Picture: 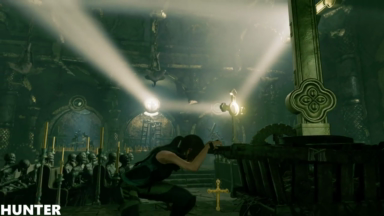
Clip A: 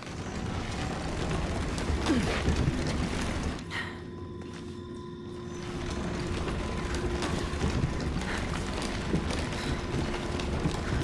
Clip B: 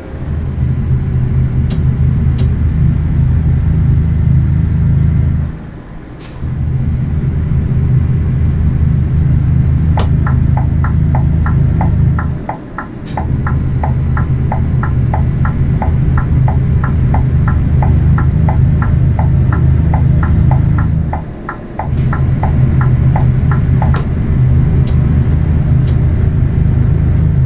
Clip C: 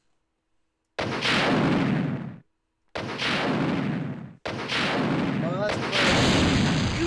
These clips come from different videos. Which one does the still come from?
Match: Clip A